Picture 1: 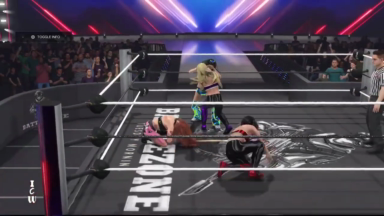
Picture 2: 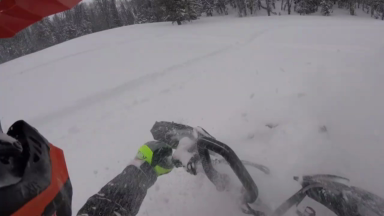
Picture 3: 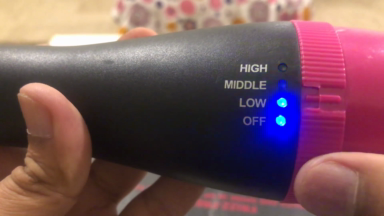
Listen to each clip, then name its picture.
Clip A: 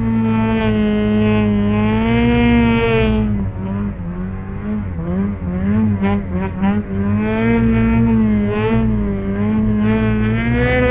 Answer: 2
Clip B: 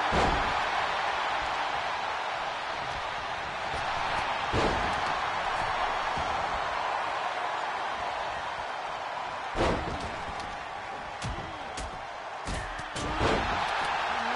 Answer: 1